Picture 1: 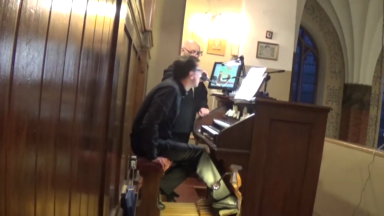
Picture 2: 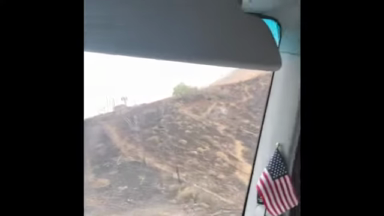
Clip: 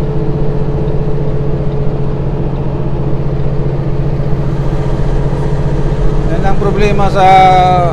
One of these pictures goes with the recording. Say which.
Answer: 2